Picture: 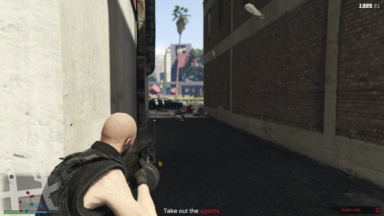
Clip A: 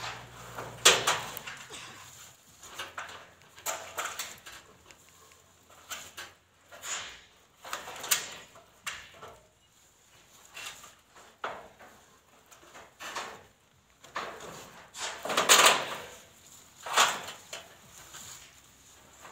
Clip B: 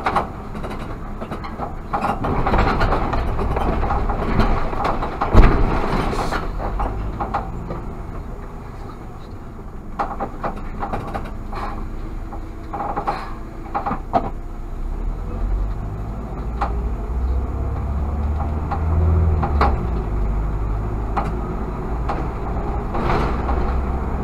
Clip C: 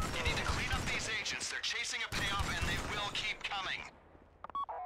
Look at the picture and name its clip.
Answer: C